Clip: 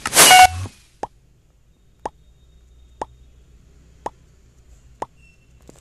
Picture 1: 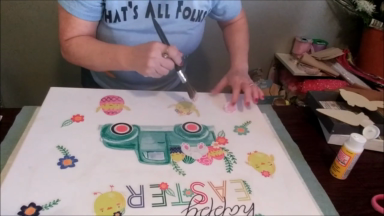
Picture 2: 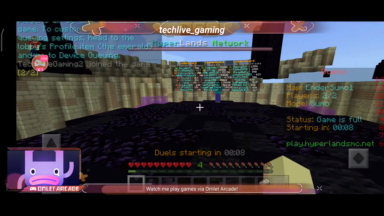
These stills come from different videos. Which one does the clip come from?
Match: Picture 2